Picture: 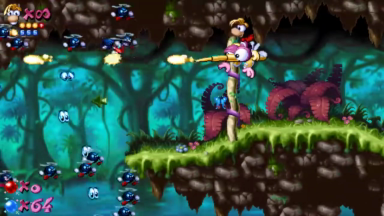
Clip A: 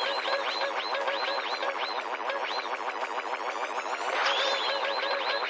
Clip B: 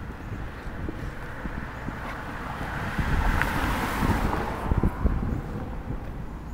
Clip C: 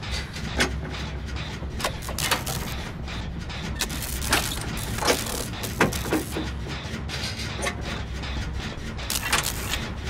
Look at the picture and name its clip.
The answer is A